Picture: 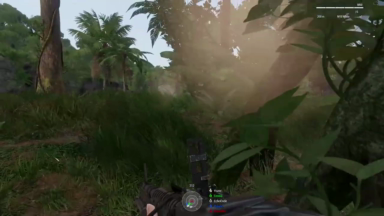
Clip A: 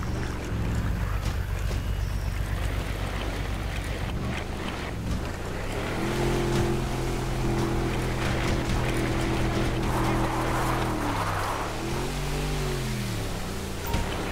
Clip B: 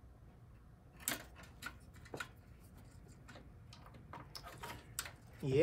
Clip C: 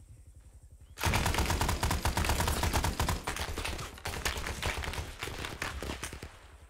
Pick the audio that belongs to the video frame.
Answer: C